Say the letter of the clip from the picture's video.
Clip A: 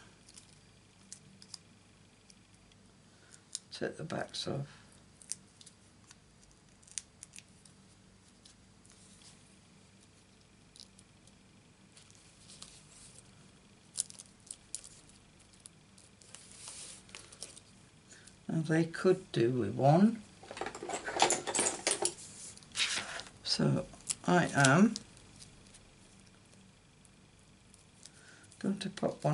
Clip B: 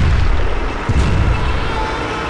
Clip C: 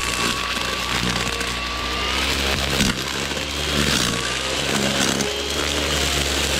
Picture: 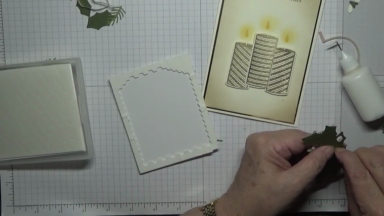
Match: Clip A